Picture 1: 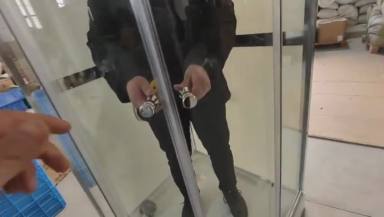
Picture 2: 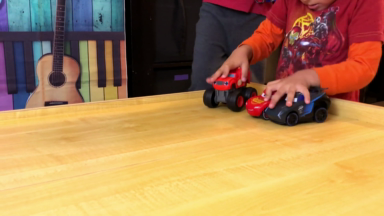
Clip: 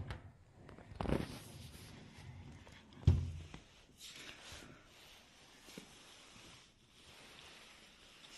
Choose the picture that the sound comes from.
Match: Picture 1